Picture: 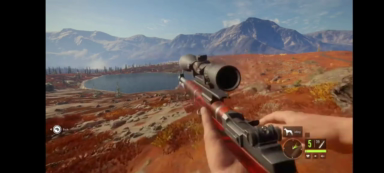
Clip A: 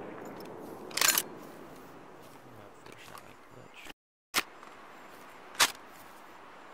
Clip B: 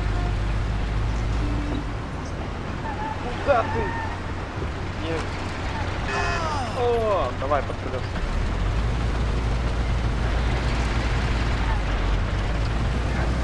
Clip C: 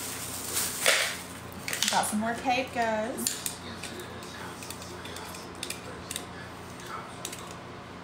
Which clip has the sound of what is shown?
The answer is A